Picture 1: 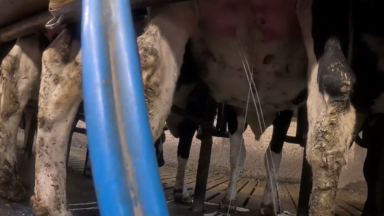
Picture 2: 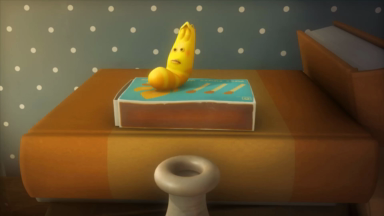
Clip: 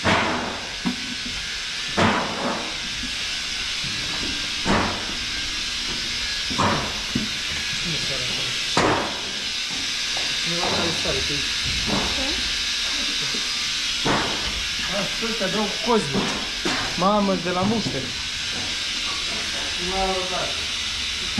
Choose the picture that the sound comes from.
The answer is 1